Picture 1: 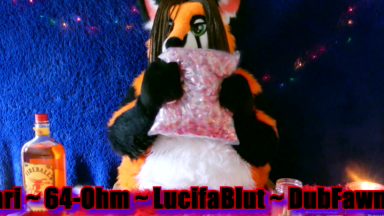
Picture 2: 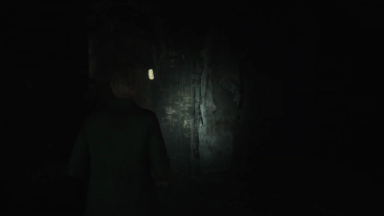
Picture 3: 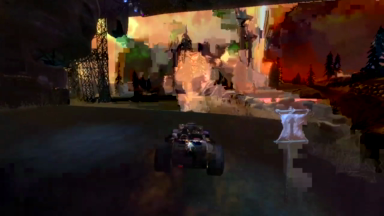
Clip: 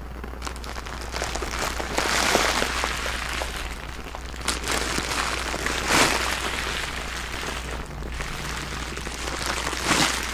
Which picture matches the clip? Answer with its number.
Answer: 1